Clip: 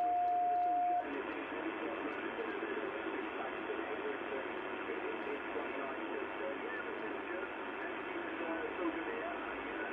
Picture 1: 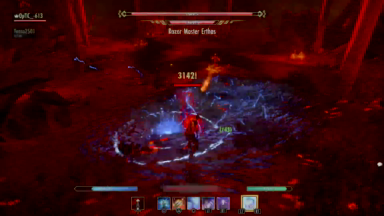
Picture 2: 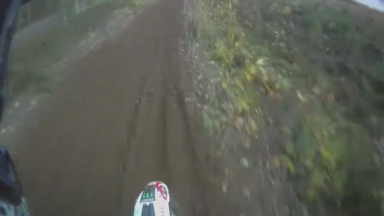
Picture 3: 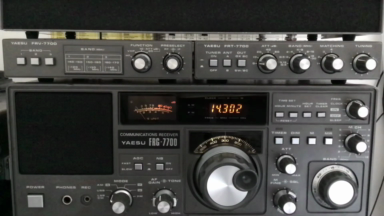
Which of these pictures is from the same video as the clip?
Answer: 3